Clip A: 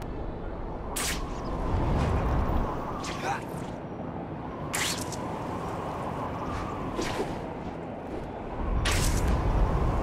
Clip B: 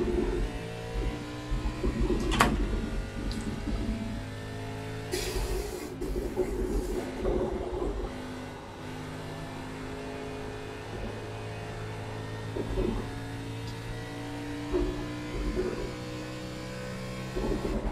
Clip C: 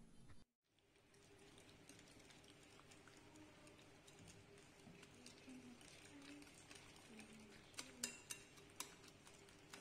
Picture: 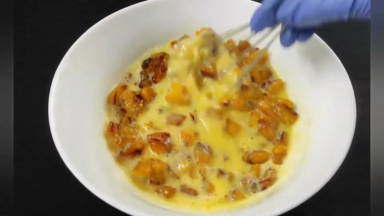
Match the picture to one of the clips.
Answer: C